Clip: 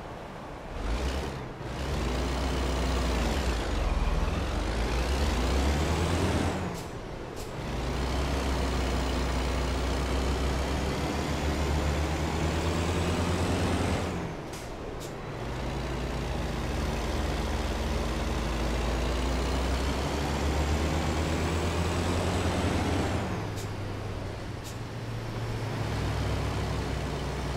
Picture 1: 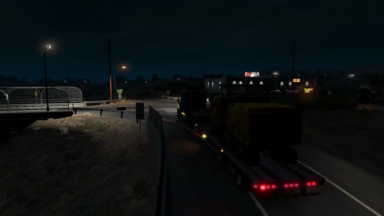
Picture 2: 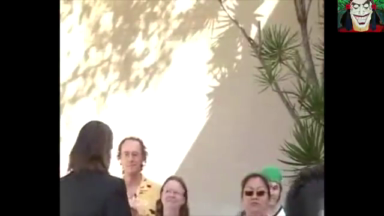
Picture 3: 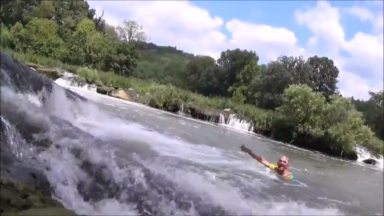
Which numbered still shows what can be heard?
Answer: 1